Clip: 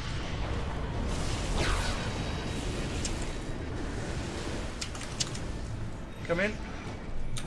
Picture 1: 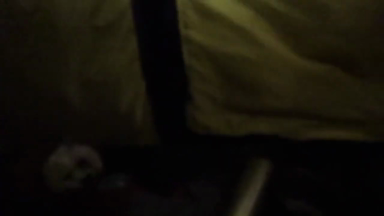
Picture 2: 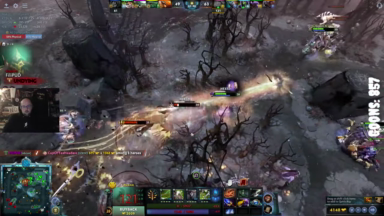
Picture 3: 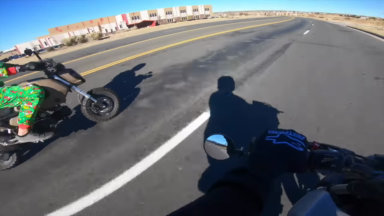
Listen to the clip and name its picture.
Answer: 2